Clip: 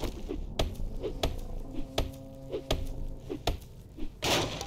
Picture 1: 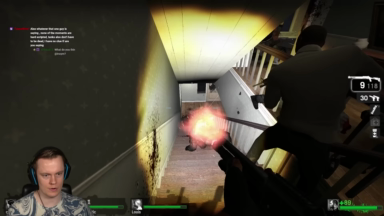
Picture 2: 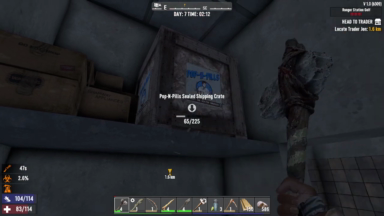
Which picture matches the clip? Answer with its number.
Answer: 2